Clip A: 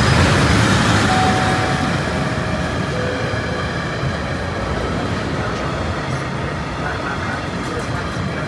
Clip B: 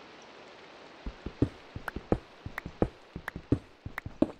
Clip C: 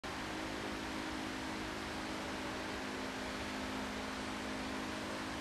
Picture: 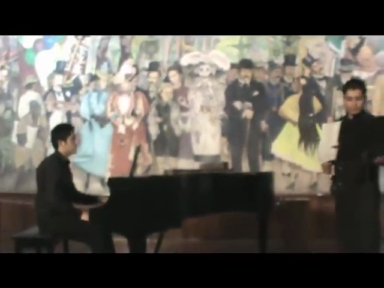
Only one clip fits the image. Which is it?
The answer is C